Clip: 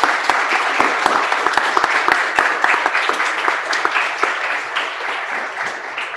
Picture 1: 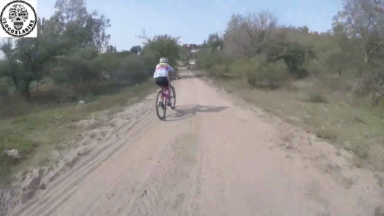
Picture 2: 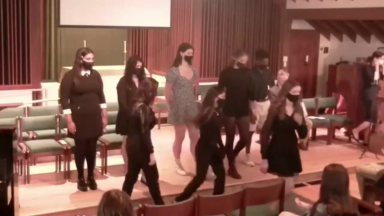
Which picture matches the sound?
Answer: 2